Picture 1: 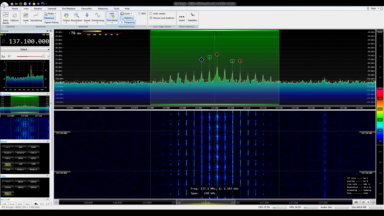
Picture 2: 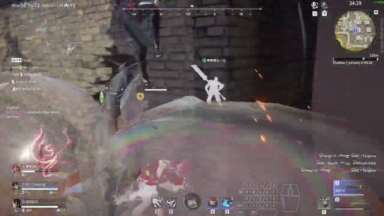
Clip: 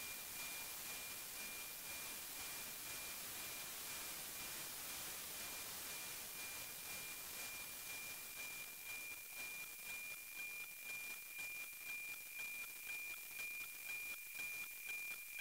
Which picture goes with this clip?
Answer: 1